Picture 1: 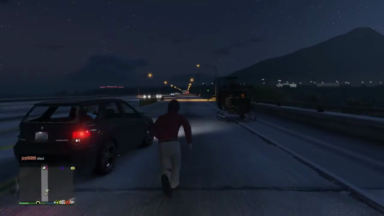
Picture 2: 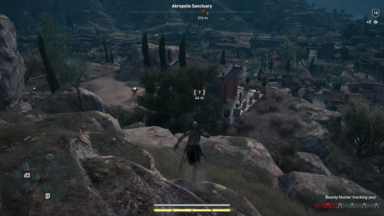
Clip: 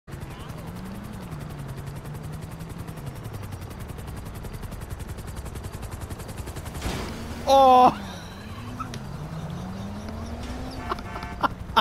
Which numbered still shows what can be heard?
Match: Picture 1